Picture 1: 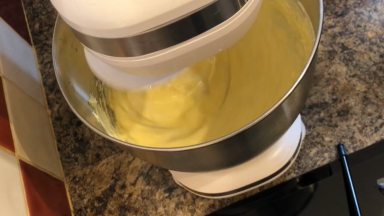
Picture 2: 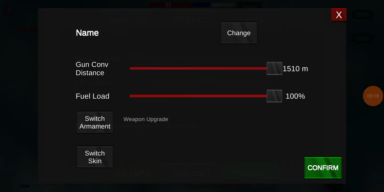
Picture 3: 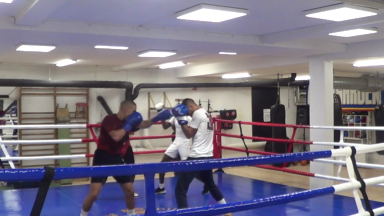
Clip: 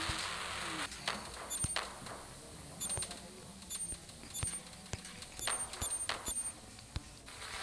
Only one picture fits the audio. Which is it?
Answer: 2